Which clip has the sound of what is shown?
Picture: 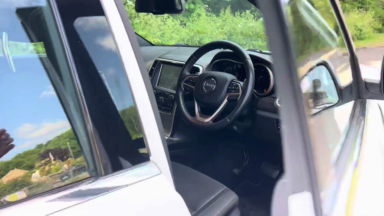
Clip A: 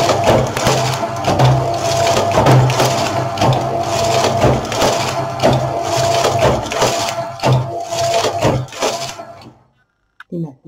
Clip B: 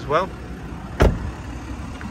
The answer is B